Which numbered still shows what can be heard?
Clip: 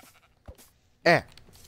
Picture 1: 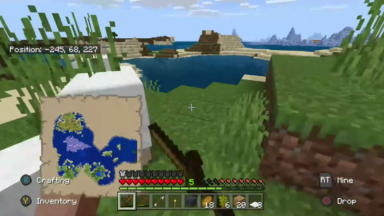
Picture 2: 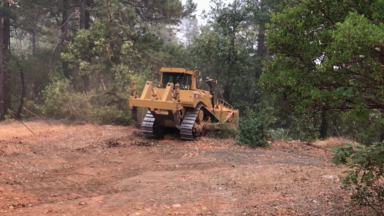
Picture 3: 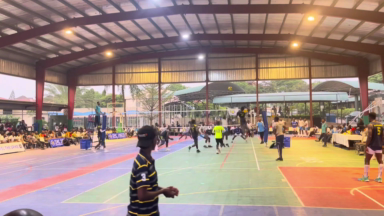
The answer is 1